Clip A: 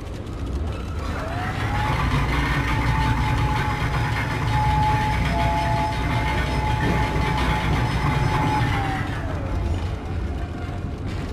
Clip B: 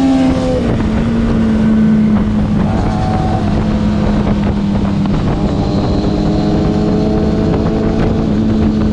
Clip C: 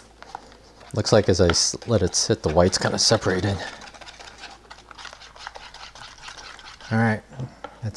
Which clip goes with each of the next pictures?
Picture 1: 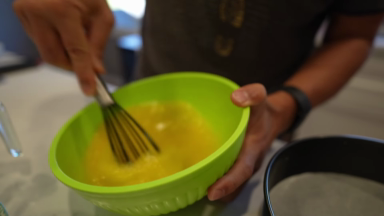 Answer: C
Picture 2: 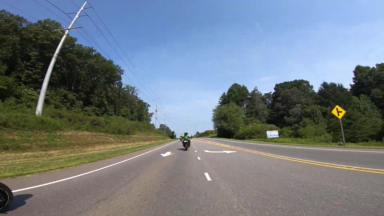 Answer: B